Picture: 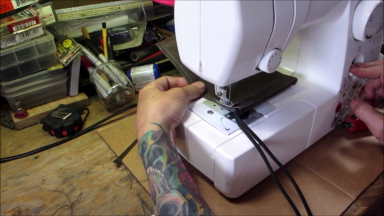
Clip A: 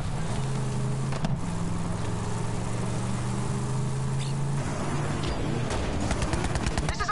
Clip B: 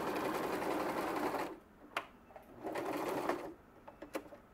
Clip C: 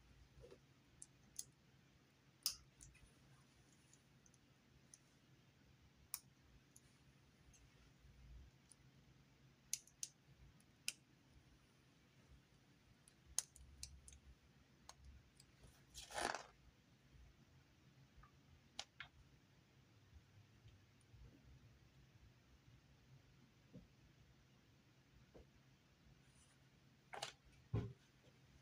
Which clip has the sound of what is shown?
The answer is B